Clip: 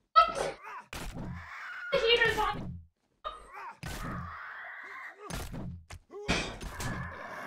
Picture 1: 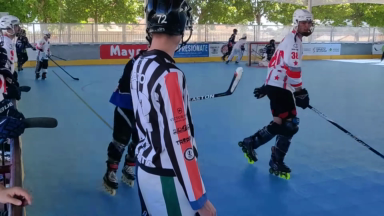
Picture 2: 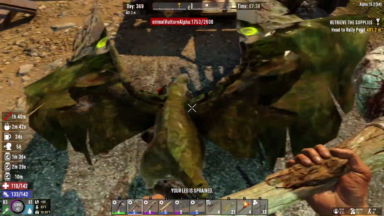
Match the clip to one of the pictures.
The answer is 2